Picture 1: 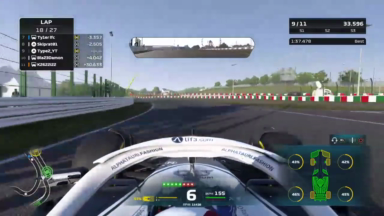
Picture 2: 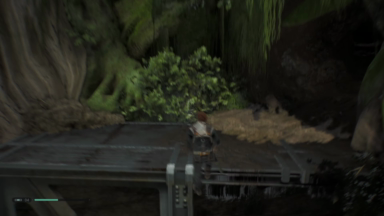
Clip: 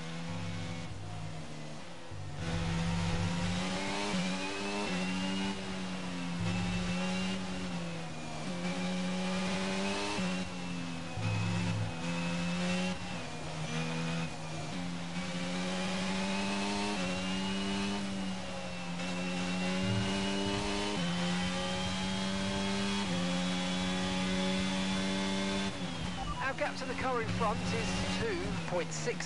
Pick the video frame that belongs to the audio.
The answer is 1